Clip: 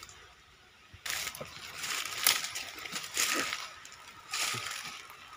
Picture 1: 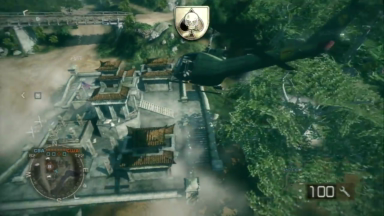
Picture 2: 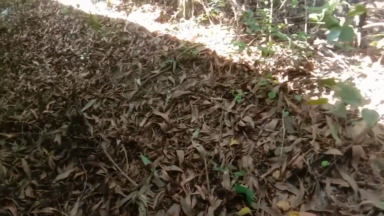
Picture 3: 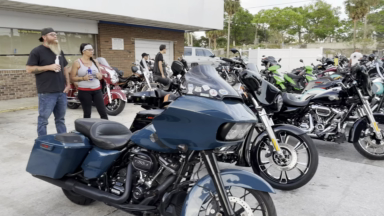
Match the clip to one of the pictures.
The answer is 2